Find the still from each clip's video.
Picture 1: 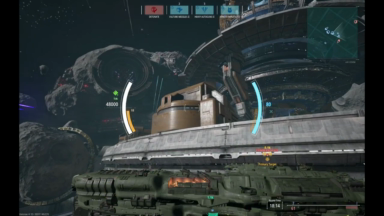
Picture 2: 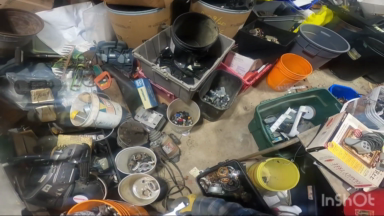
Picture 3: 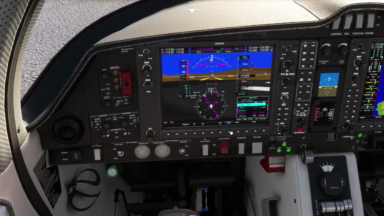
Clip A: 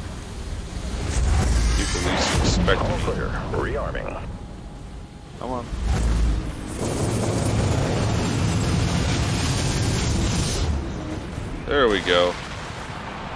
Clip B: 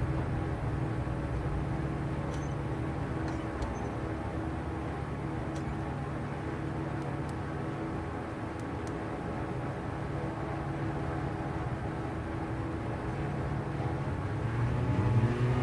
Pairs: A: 1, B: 3